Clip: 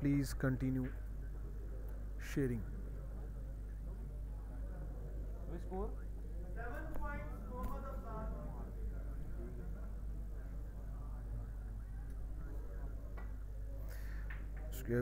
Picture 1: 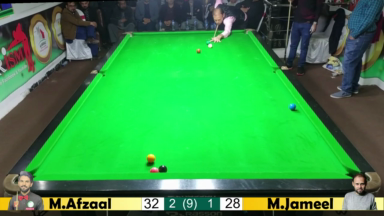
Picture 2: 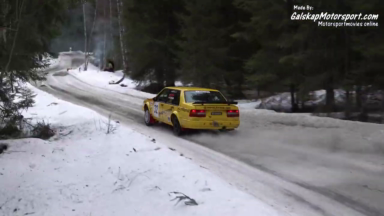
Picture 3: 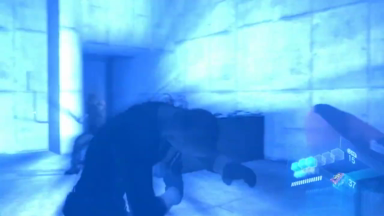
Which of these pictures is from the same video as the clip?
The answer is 1